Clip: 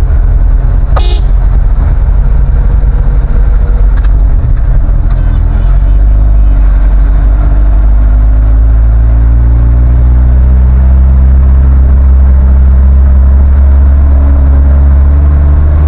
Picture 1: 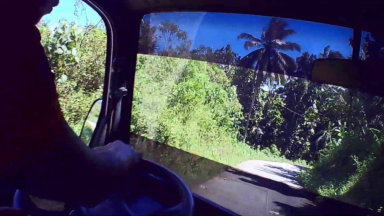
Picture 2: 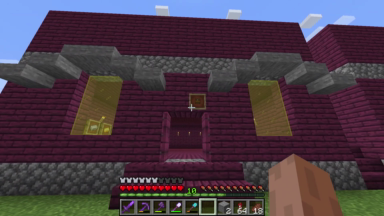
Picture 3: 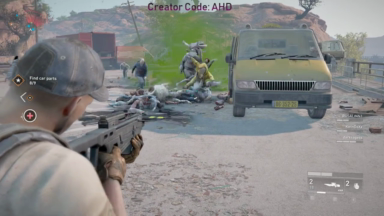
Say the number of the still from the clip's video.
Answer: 1